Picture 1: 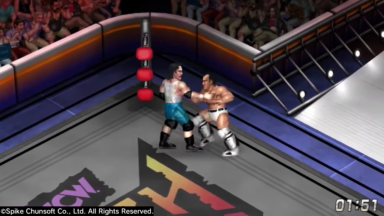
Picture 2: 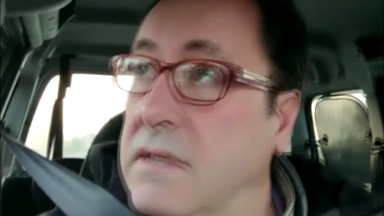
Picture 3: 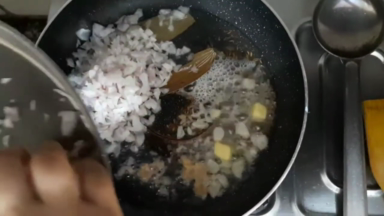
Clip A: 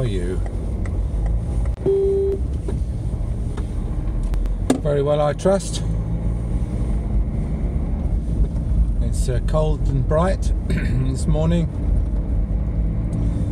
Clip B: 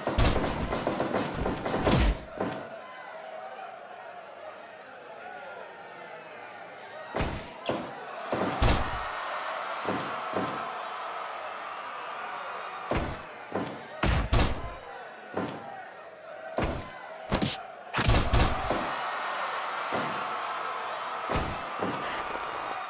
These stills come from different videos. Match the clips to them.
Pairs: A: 2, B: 1